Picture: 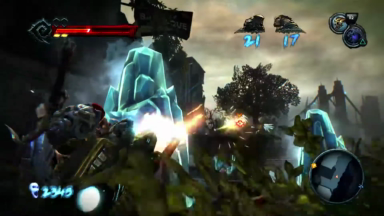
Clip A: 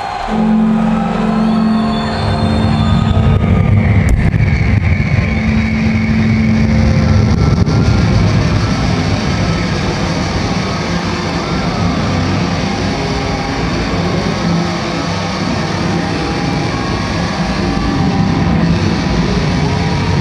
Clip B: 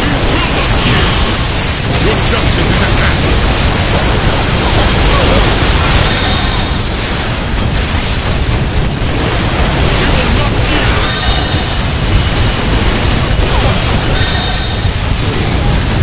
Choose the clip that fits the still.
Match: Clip B